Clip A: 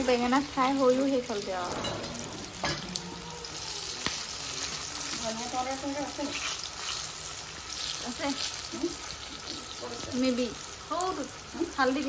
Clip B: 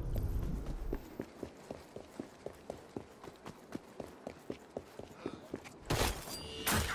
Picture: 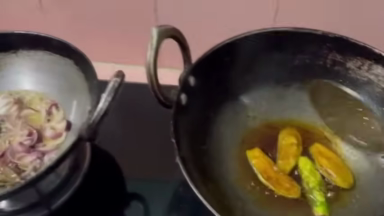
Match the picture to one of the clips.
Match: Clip A